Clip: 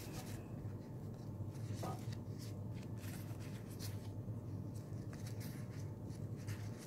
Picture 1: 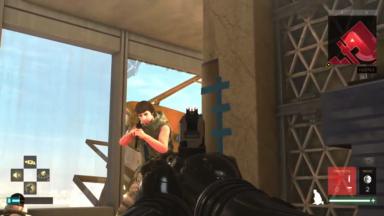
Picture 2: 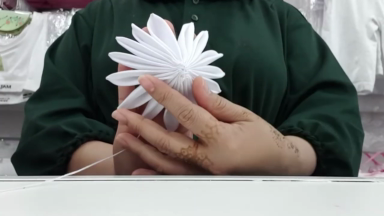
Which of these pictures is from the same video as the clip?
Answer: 2